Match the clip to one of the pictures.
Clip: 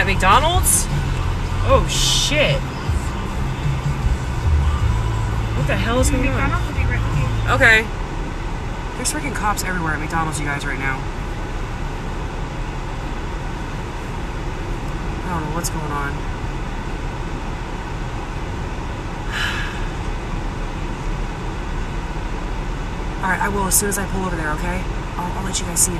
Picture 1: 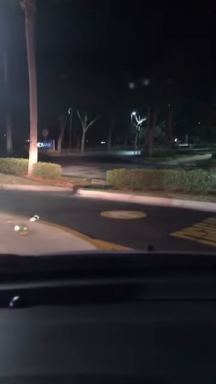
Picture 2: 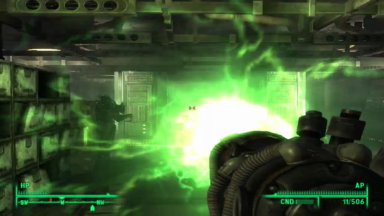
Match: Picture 1